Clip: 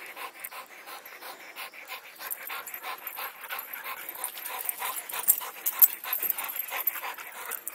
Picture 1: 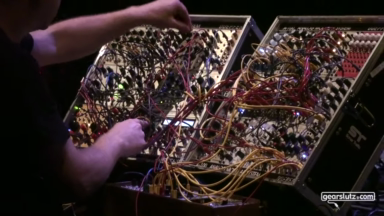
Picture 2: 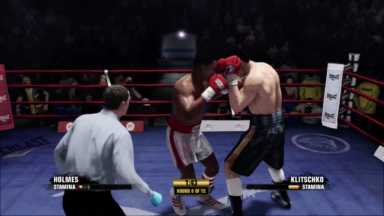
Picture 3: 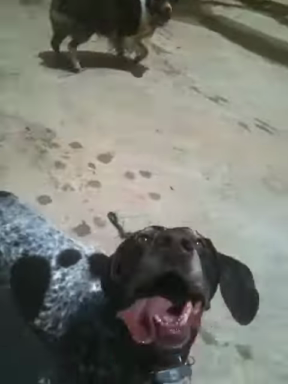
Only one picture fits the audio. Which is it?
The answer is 3